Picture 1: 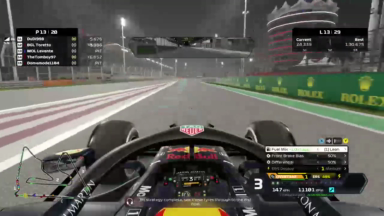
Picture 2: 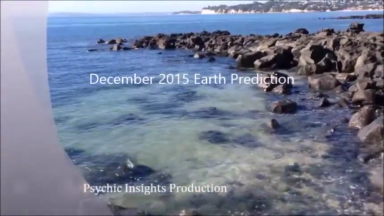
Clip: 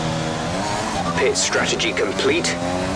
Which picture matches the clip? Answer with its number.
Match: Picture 1